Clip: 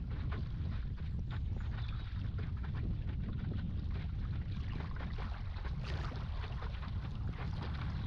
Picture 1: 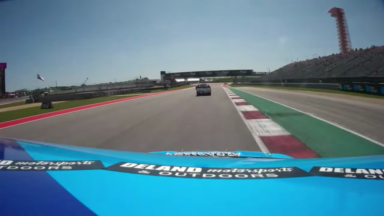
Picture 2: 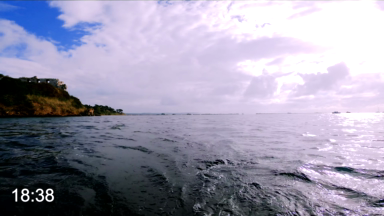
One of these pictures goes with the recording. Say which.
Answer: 2